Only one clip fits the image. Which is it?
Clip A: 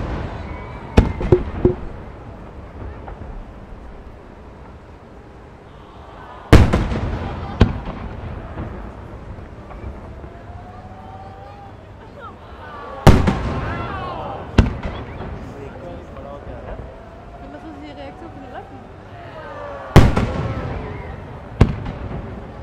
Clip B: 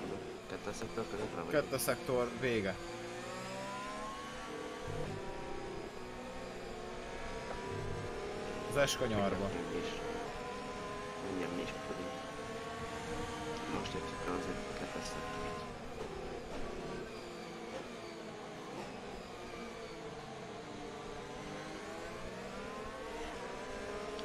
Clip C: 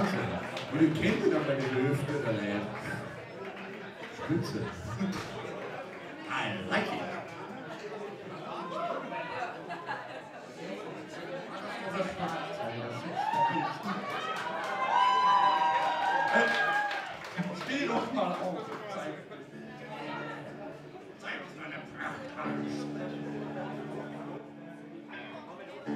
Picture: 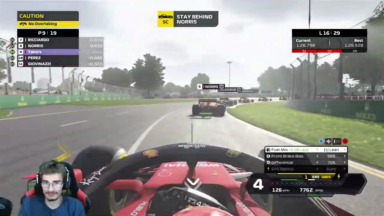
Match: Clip B